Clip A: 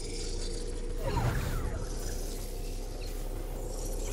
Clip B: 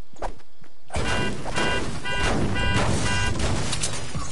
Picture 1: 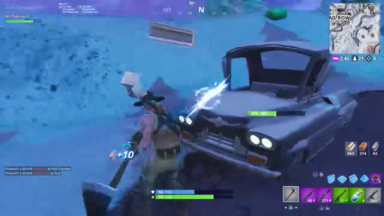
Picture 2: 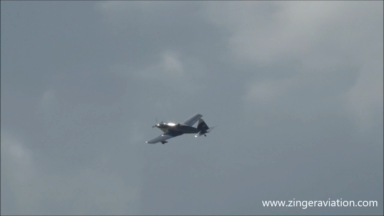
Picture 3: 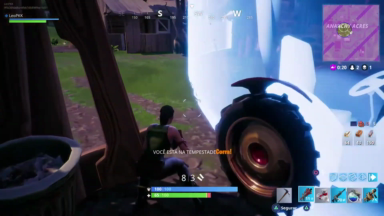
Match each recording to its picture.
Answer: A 3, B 1